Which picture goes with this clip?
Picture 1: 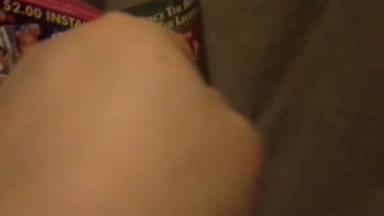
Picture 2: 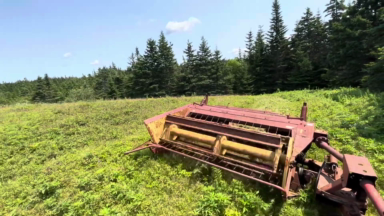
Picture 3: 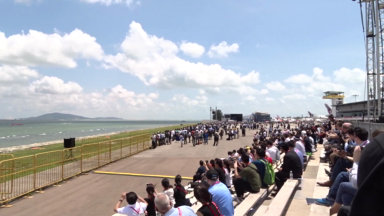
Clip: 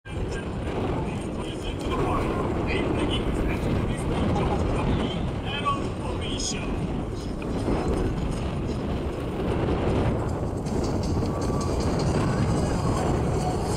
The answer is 3